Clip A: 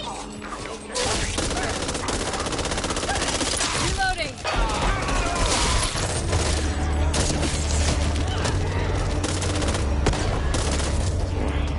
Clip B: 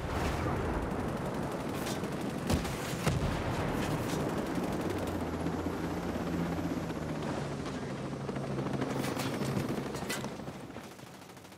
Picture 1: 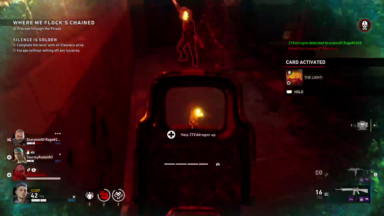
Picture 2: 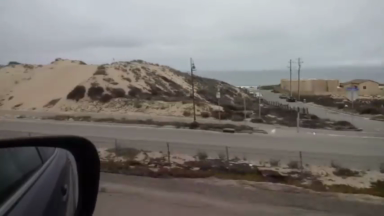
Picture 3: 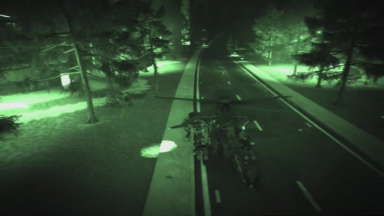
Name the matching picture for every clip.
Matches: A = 1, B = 3